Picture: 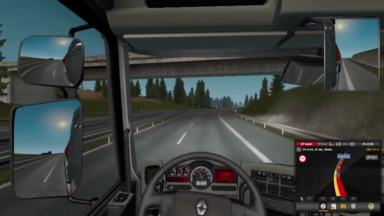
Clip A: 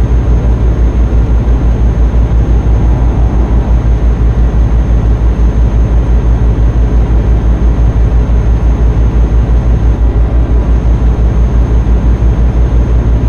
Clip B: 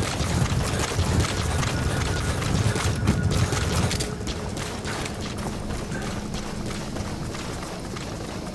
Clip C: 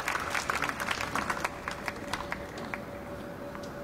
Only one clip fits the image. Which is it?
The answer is A